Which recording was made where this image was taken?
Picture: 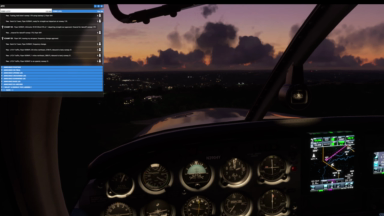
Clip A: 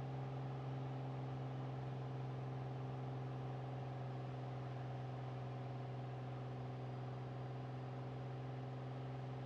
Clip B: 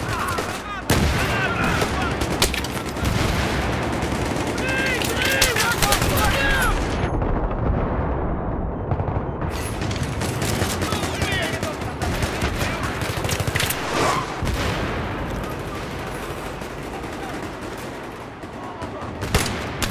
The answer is A